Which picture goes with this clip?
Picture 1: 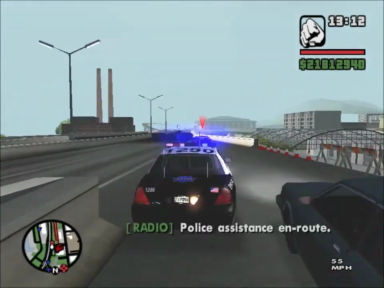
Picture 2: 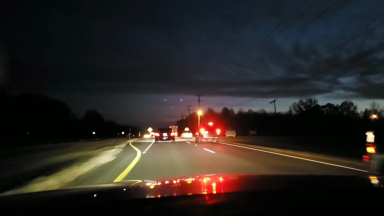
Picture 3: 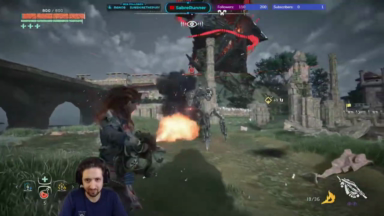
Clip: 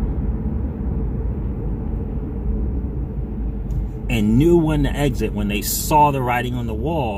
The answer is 2